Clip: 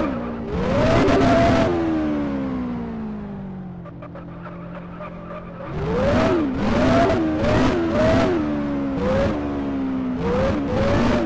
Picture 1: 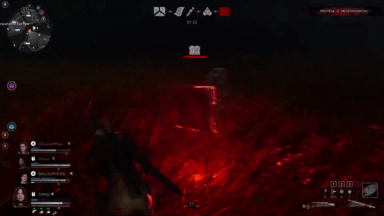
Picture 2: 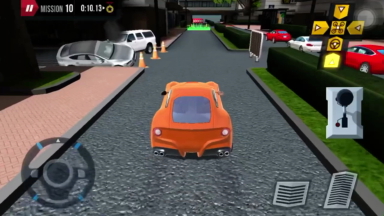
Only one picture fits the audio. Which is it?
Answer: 2